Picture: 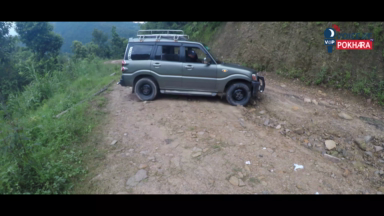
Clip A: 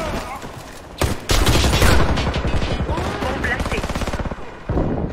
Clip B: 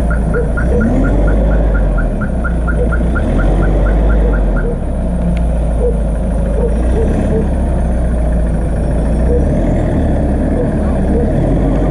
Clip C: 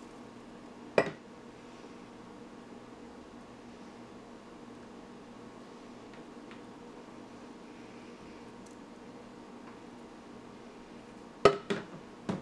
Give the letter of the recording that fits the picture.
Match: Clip B